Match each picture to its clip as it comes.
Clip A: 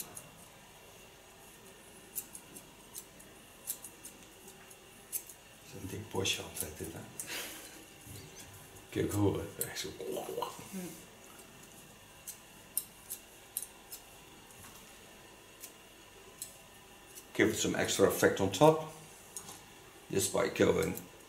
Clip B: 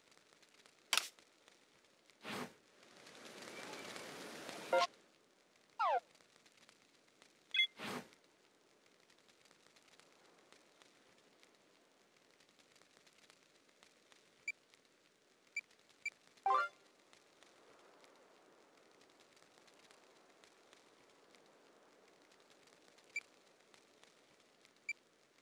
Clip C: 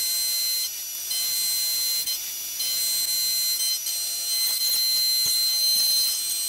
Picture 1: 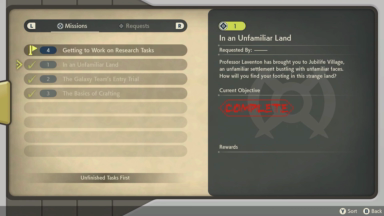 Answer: B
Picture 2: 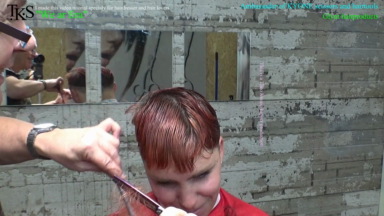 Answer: A